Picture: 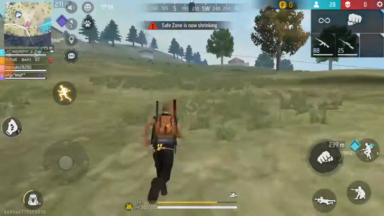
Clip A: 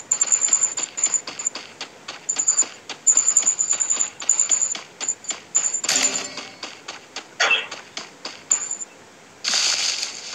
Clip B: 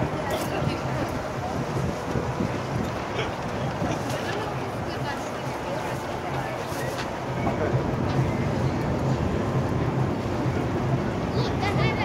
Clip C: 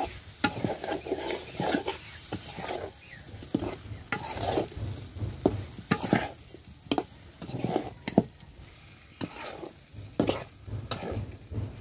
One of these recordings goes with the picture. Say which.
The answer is A